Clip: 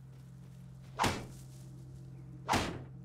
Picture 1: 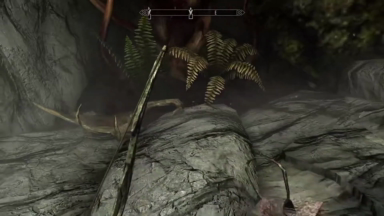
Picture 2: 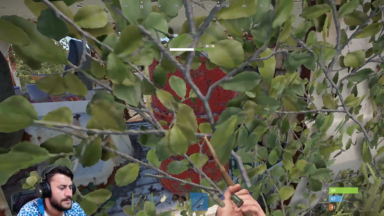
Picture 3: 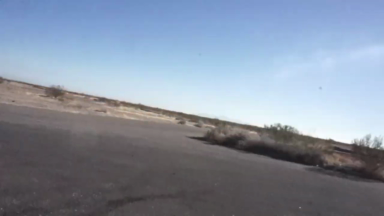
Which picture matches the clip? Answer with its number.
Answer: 2